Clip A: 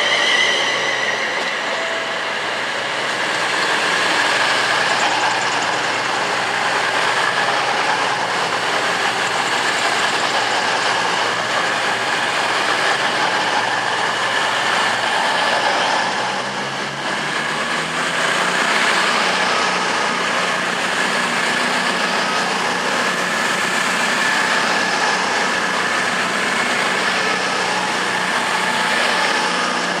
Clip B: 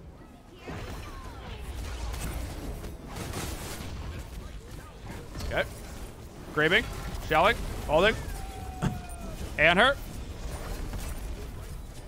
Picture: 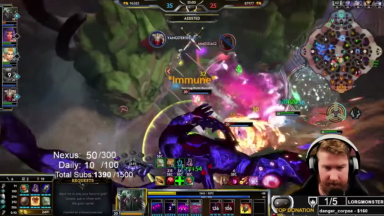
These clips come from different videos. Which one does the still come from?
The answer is B